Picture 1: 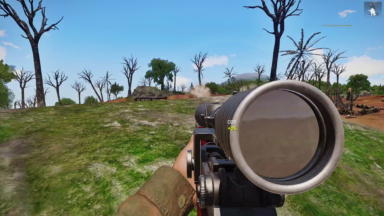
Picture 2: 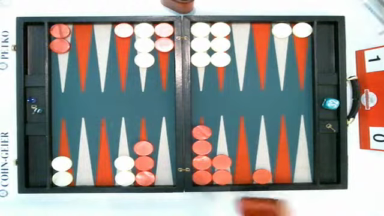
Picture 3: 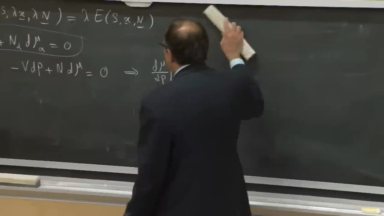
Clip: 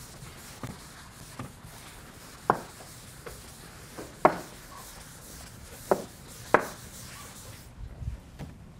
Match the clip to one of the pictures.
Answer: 3